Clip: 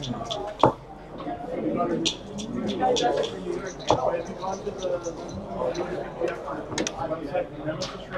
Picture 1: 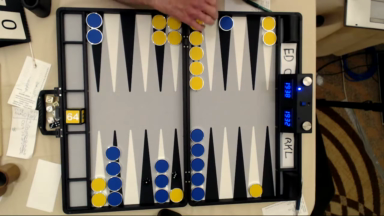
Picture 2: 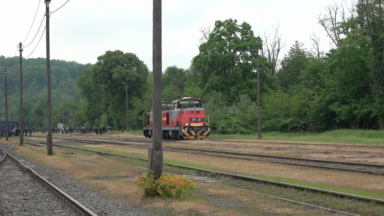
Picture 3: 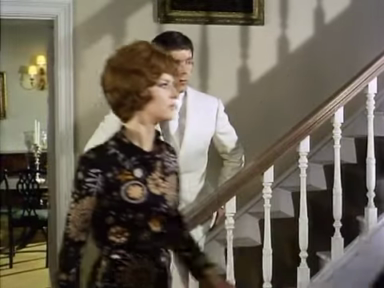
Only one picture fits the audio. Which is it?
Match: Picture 1